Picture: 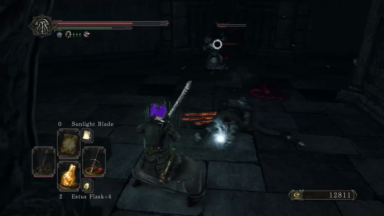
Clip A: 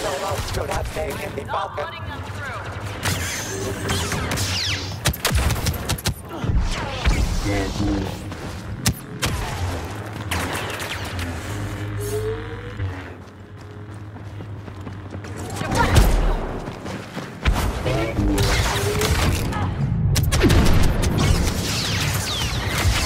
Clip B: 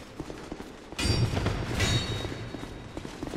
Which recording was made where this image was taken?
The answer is B